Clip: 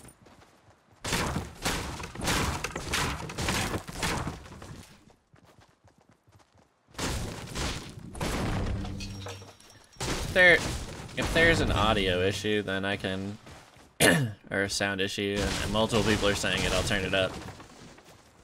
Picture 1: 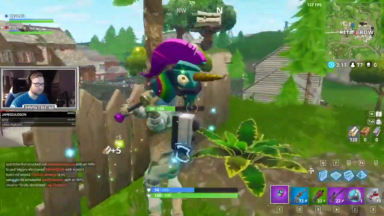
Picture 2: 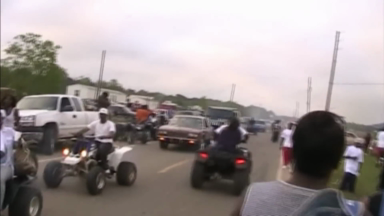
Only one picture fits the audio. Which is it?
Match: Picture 1